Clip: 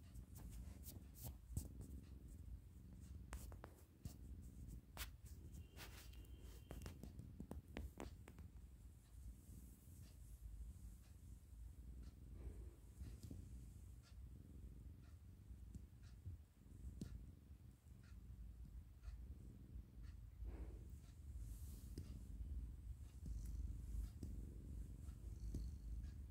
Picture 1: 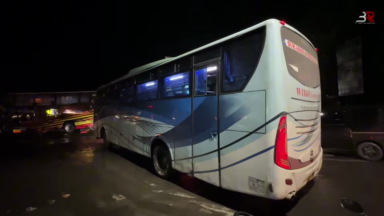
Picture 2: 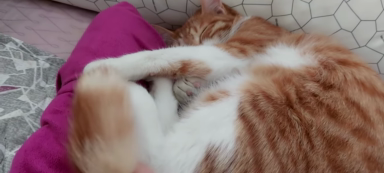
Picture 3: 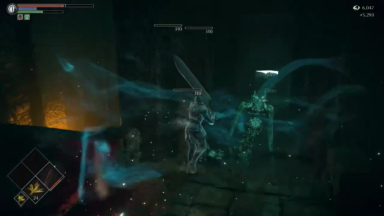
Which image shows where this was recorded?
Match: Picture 2